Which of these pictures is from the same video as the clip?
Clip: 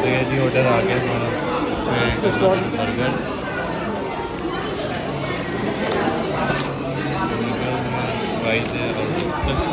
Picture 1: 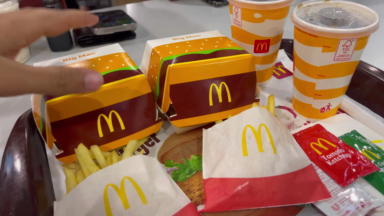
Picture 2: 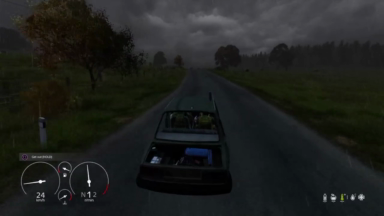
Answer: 1